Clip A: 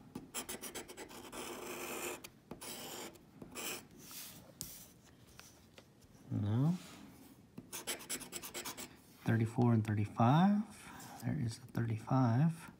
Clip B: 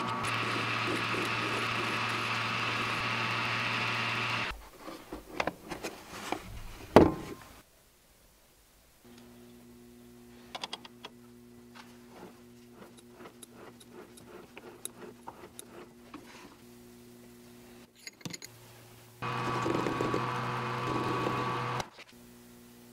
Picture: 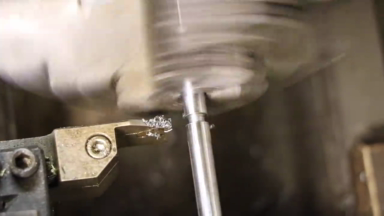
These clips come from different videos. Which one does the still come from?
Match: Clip B